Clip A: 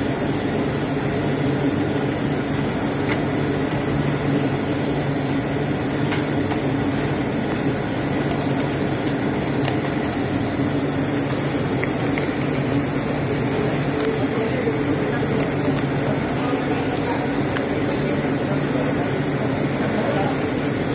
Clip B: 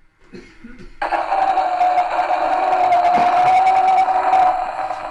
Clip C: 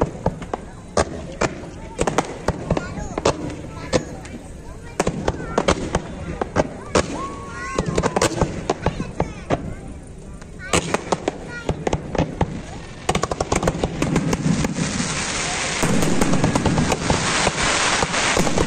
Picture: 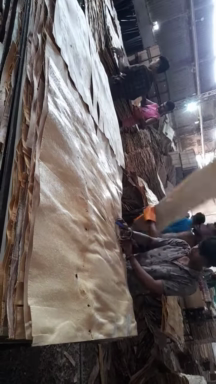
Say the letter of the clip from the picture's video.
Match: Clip A